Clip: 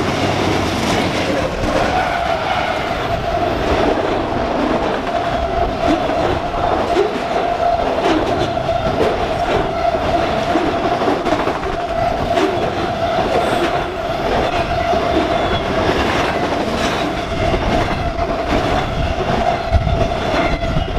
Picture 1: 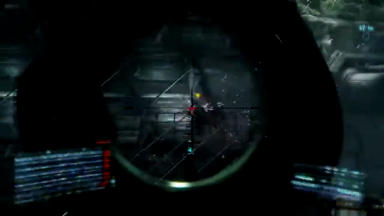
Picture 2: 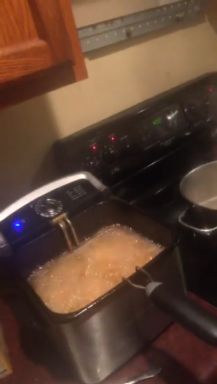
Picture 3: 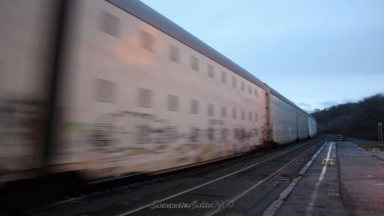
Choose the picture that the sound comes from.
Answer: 3